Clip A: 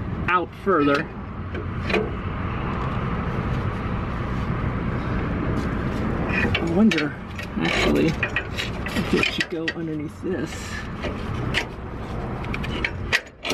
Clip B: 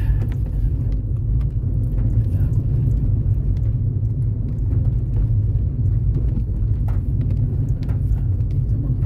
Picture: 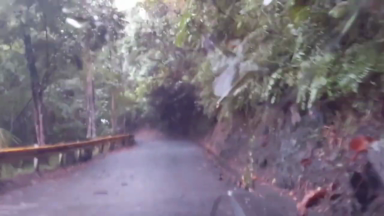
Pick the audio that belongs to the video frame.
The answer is B